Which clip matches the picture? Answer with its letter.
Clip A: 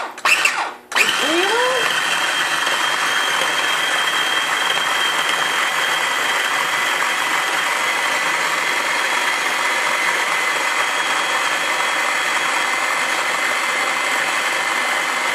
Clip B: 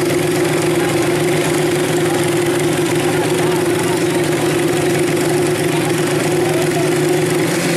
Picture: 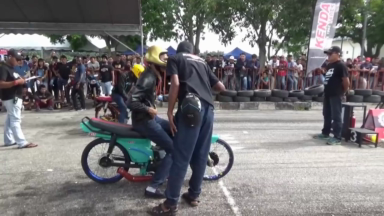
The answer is B